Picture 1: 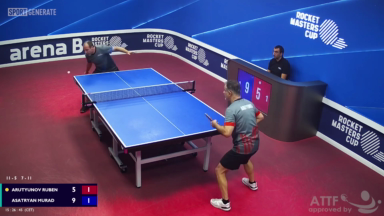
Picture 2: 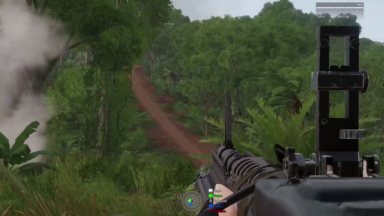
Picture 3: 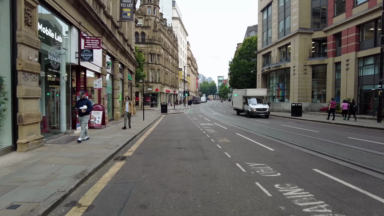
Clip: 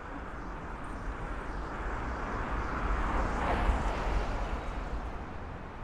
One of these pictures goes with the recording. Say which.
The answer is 3